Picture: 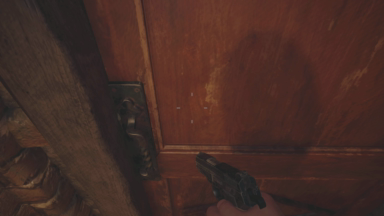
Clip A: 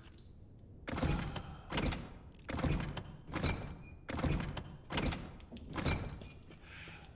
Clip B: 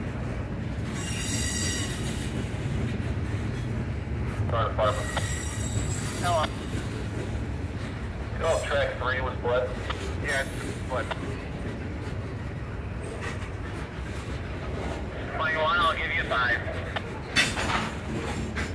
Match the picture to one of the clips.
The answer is A